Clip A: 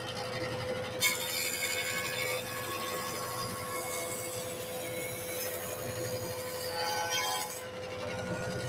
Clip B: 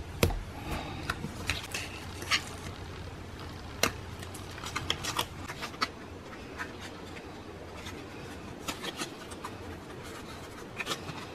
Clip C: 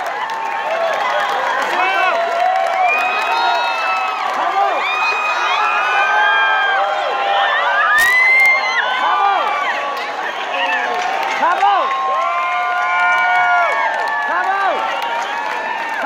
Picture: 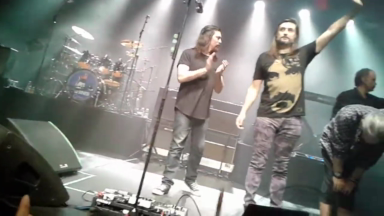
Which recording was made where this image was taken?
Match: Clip C